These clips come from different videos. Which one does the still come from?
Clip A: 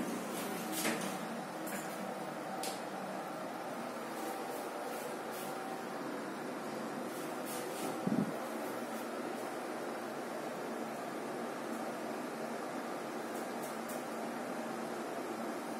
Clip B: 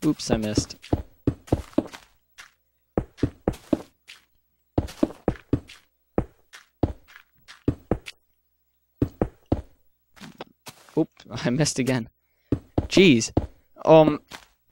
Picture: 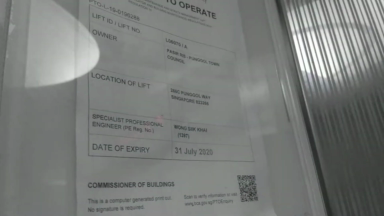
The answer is A